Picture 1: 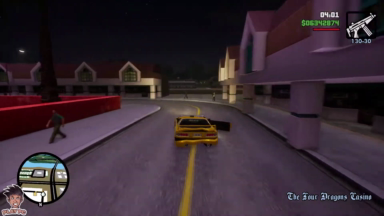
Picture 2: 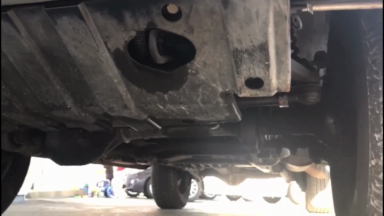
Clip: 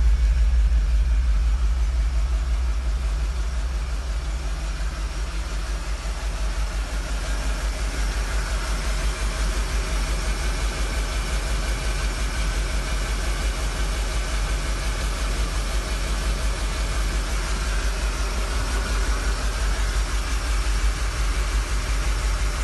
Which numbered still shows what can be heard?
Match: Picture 2